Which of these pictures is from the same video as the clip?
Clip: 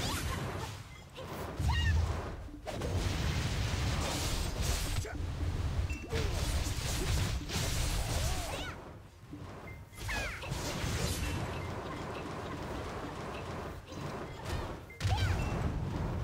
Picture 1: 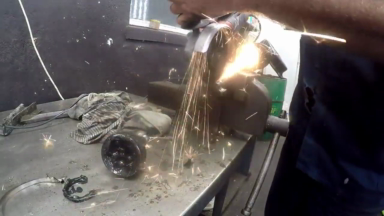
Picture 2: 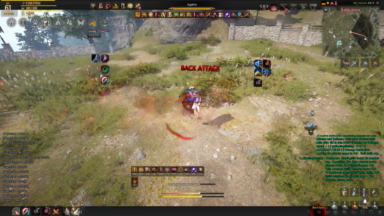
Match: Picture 2